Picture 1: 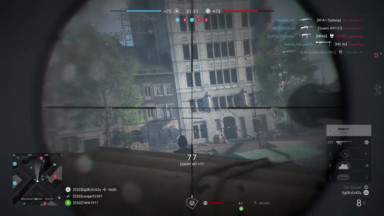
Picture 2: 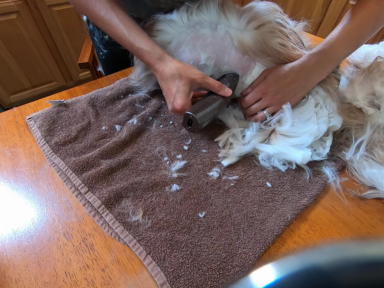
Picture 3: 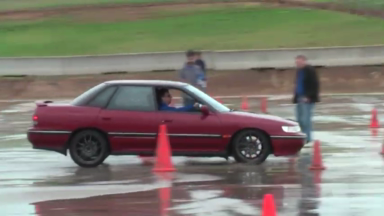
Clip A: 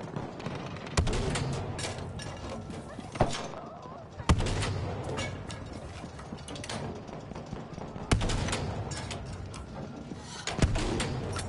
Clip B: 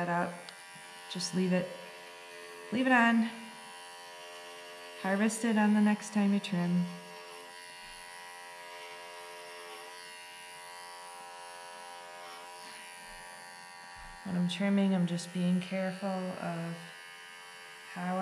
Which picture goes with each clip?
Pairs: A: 1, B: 2